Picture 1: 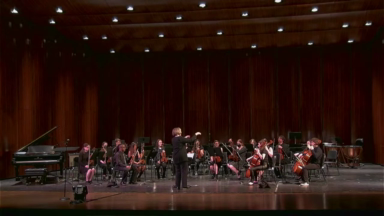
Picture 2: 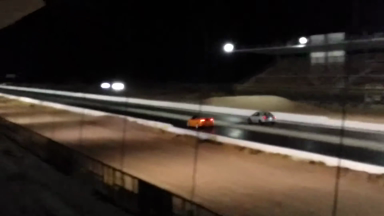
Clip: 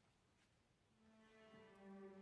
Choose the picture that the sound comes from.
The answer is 1